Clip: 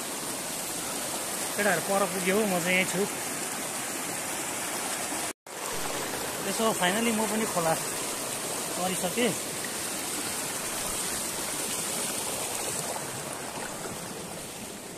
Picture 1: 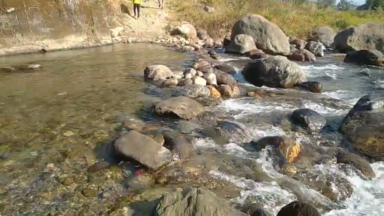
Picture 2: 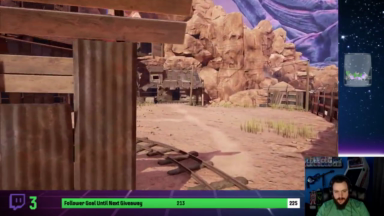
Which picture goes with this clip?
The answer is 1